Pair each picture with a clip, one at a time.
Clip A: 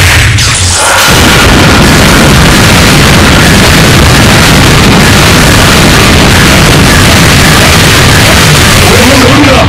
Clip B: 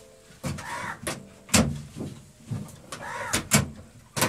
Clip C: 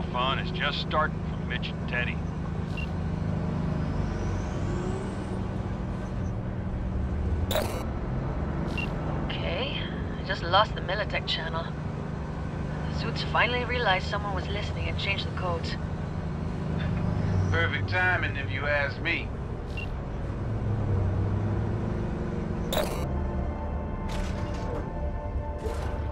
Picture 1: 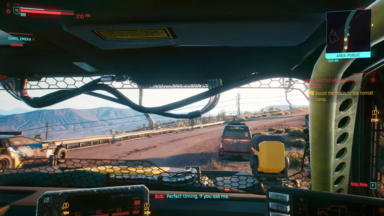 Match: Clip C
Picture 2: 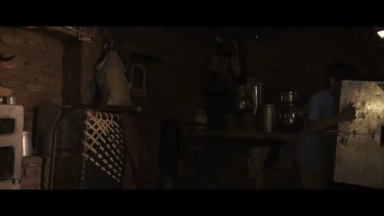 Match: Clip B